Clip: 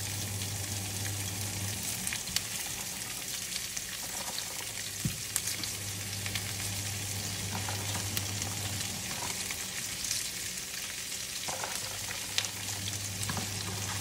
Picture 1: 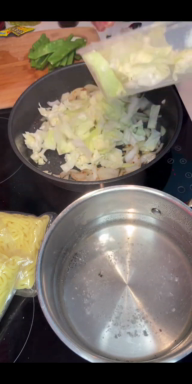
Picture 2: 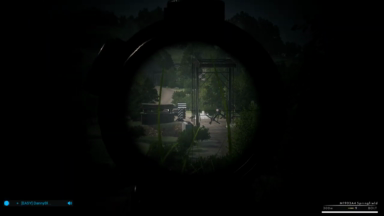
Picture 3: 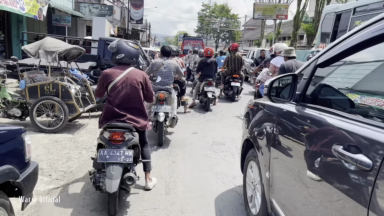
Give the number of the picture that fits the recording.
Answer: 1